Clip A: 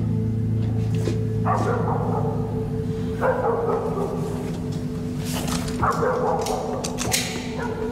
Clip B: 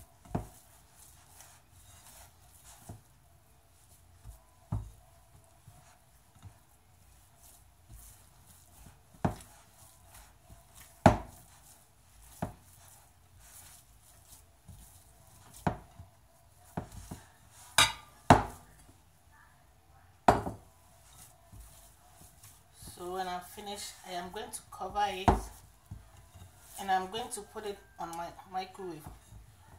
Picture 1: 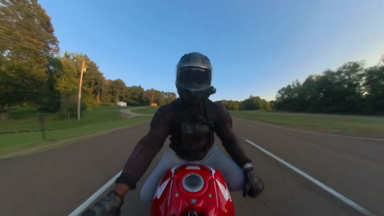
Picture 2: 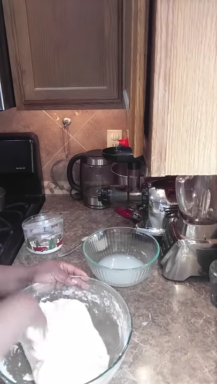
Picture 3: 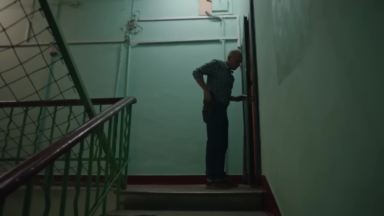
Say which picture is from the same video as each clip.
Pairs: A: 3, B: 2